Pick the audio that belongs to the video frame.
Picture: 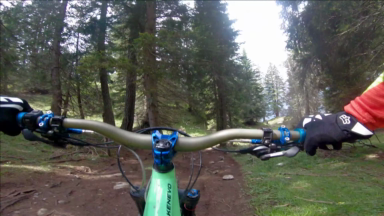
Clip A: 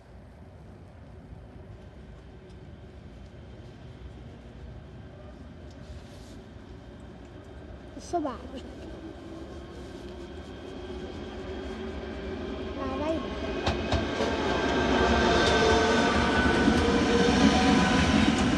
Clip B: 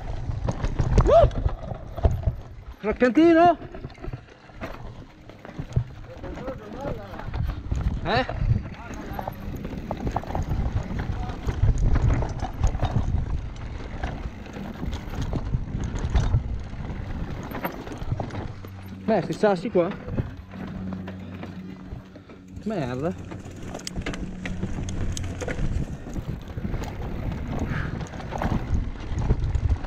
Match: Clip B